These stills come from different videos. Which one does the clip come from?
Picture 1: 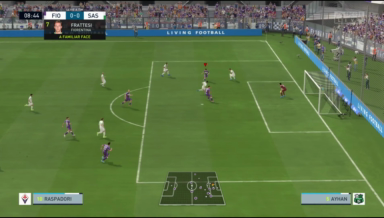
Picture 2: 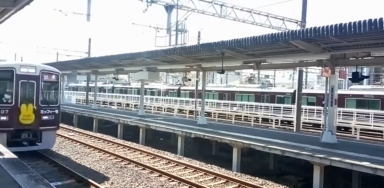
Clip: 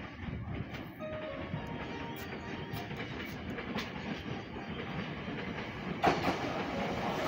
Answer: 2